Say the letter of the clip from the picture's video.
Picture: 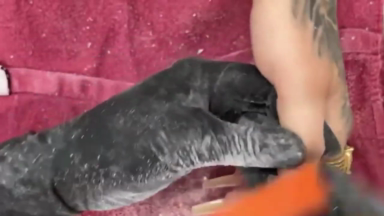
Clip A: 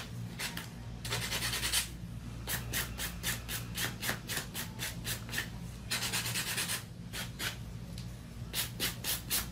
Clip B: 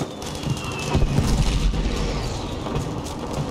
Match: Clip A